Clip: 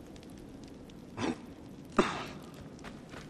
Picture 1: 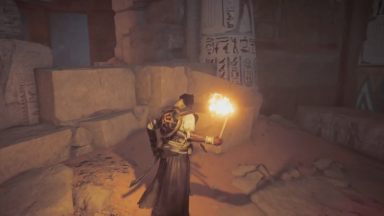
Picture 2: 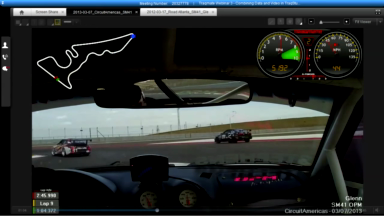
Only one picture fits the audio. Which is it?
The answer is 1